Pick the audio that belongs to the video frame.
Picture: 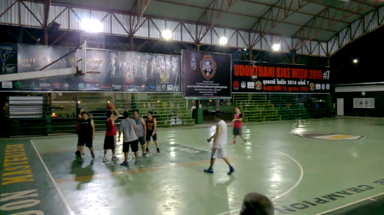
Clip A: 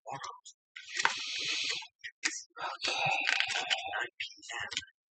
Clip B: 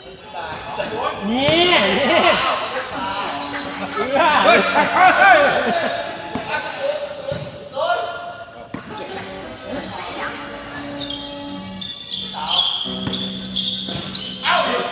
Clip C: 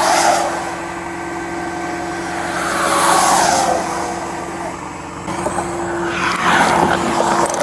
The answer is B